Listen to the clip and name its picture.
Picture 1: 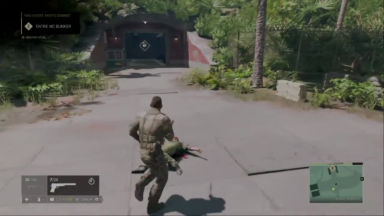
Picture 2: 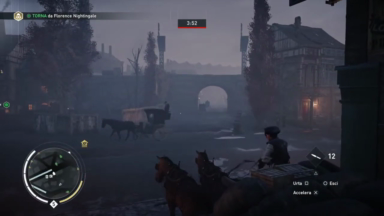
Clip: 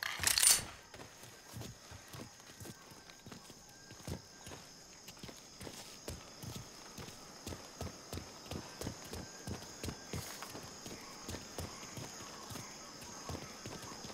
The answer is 1